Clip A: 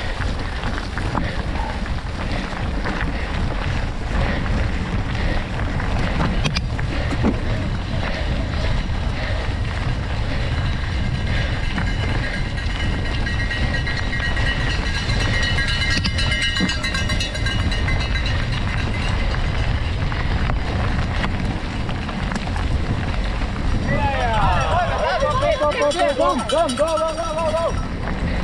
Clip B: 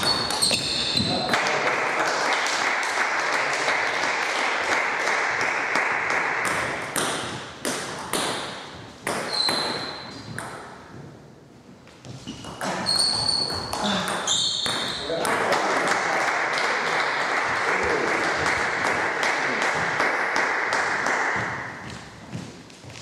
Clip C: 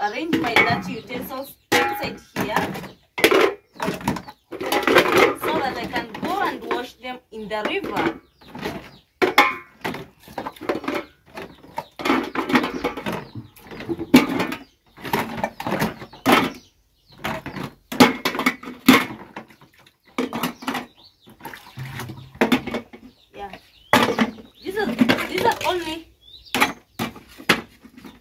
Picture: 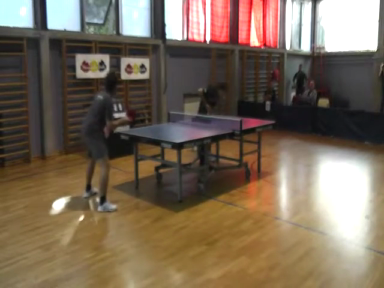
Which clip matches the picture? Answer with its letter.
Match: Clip B